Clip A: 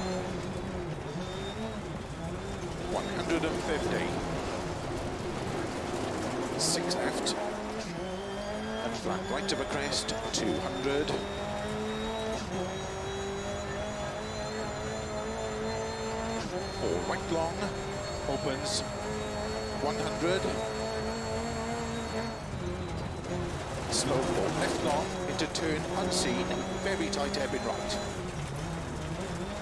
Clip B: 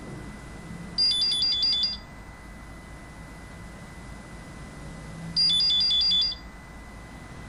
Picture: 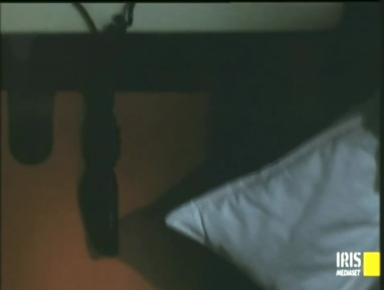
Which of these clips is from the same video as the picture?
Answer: B